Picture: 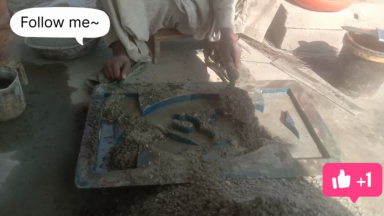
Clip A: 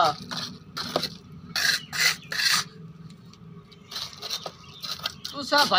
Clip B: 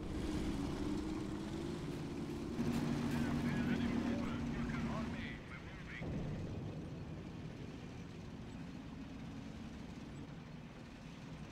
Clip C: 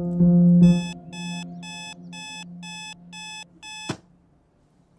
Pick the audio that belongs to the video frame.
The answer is A